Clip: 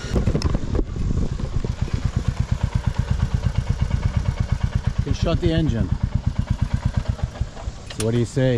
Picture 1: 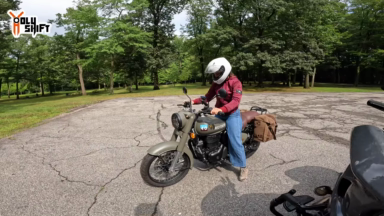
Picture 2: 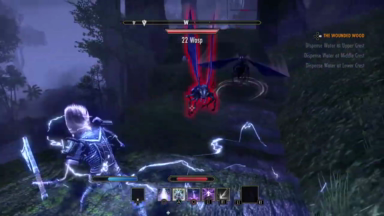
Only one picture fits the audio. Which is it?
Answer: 1